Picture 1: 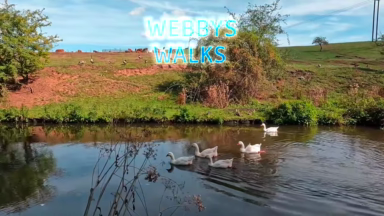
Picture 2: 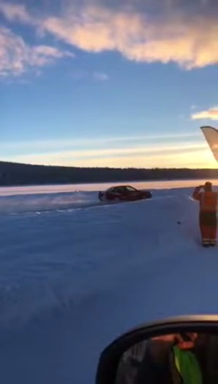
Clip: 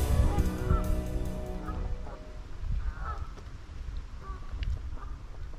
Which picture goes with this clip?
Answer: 1